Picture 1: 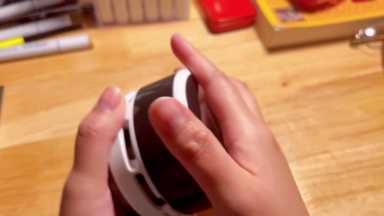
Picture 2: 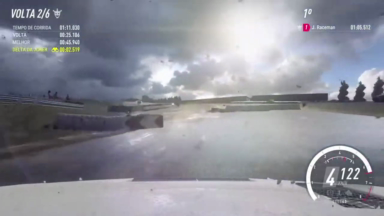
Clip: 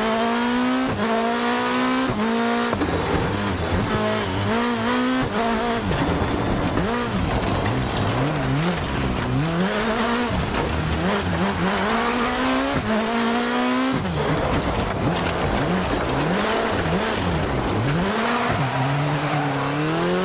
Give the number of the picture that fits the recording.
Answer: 2